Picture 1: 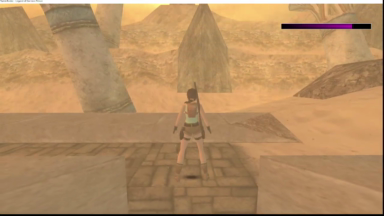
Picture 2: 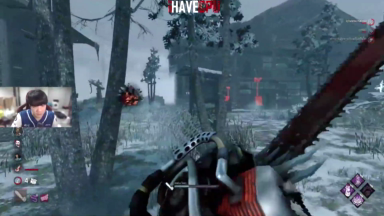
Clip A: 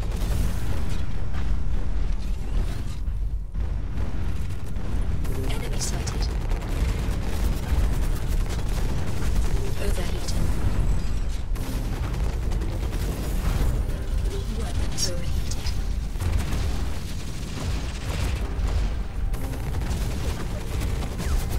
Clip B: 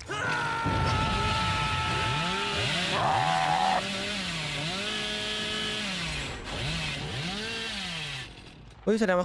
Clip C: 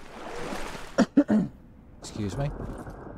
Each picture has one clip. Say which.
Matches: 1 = C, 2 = B